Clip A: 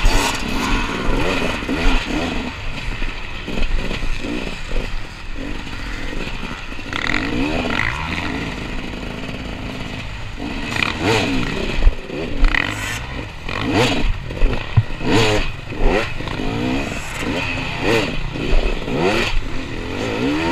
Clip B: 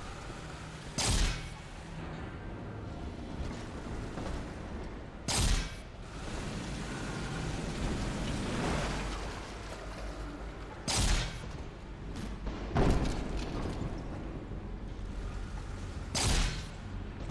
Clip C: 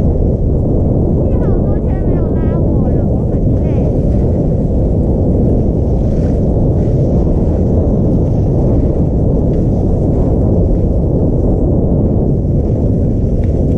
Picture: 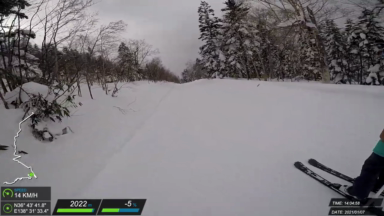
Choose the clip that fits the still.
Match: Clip C